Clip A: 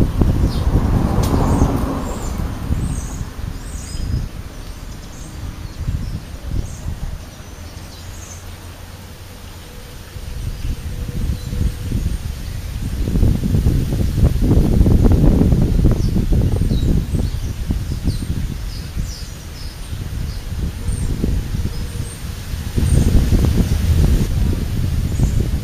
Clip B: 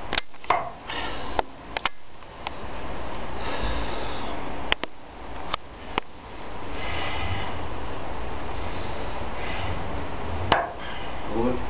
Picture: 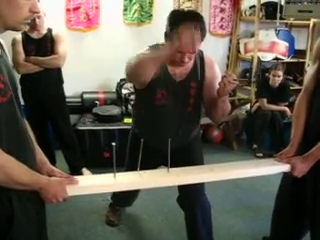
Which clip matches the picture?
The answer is B